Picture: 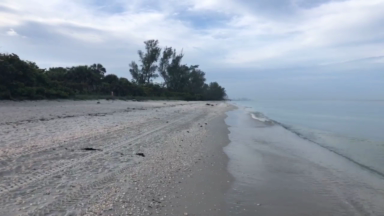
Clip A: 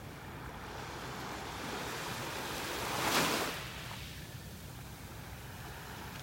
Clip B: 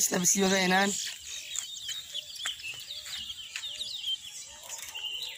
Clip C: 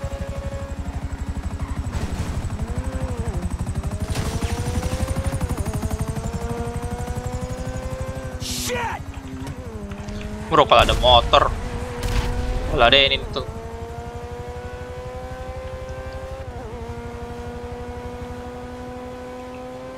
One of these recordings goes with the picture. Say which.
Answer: A